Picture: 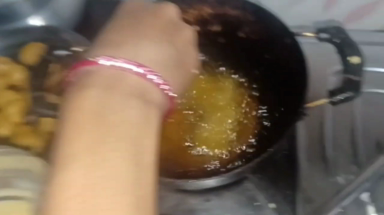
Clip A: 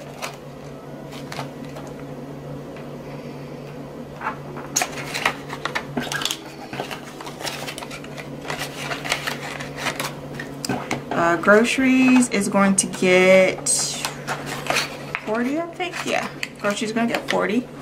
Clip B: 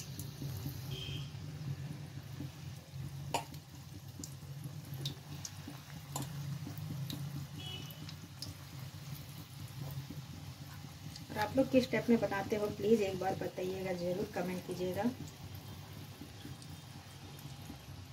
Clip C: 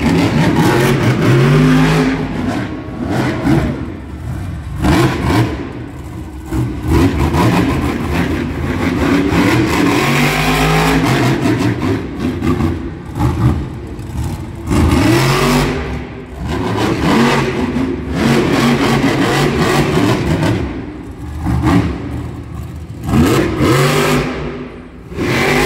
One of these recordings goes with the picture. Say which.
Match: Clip B